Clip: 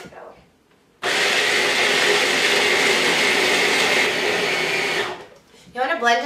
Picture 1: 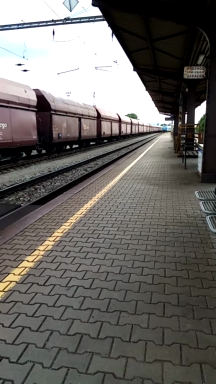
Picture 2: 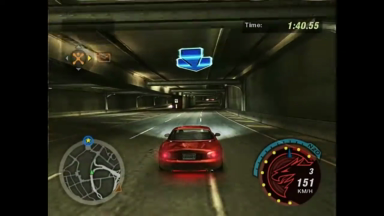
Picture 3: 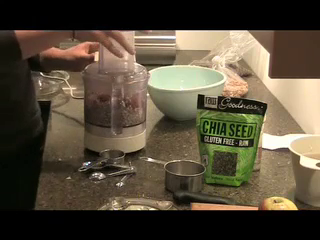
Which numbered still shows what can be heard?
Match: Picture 3